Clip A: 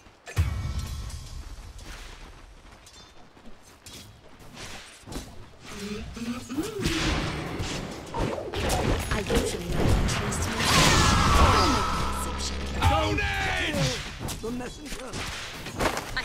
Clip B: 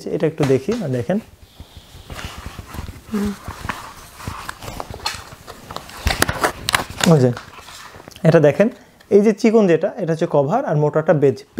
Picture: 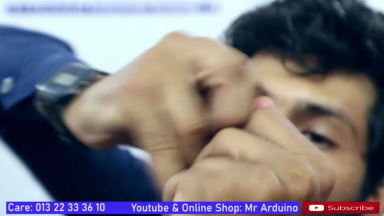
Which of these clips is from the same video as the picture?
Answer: B